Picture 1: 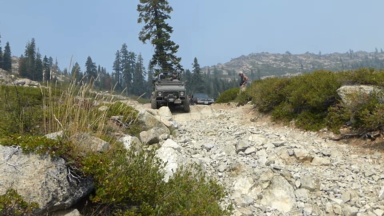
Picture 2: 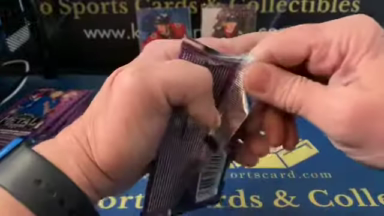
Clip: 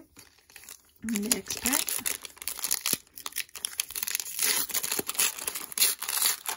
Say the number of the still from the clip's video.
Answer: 2